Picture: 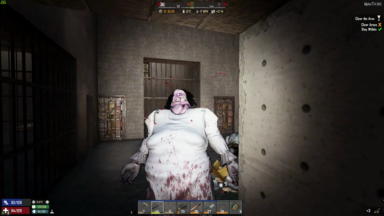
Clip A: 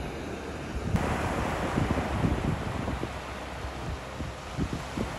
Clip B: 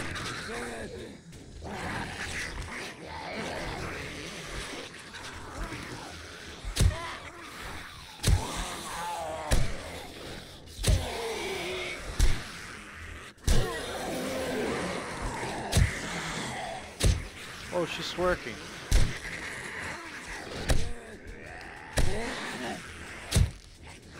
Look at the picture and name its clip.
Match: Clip B